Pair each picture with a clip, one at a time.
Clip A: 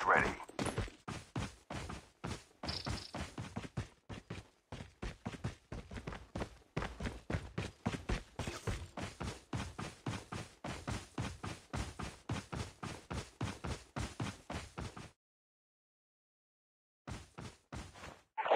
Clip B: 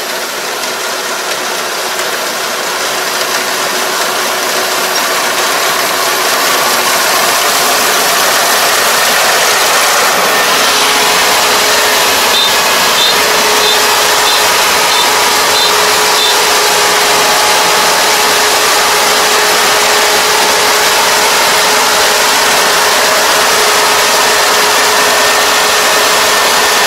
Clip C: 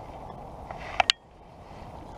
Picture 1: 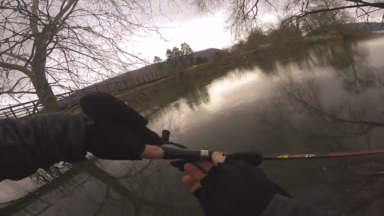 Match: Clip C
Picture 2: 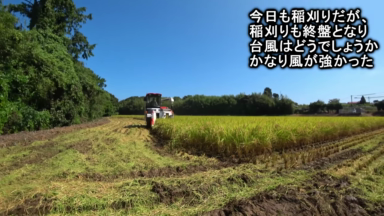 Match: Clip B